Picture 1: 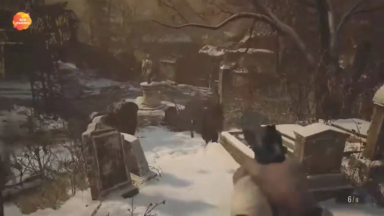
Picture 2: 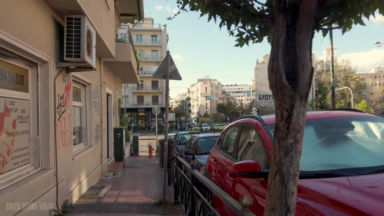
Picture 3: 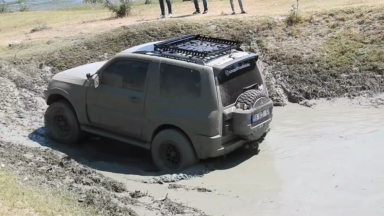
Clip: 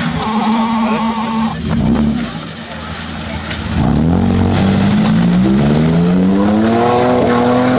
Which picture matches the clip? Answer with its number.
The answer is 3